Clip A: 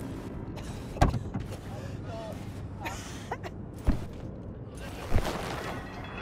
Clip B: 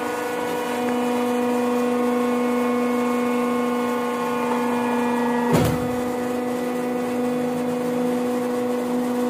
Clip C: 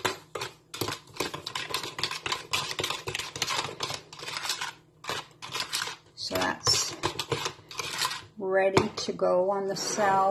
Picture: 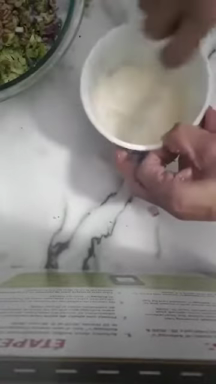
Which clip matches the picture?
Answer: C